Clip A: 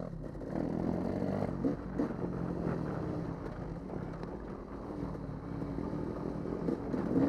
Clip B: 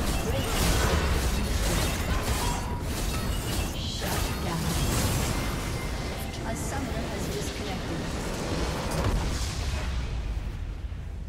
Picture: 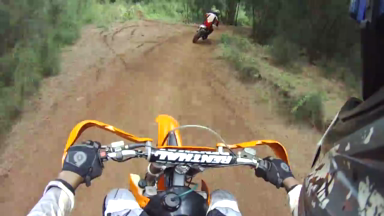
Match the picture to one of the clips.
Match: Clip A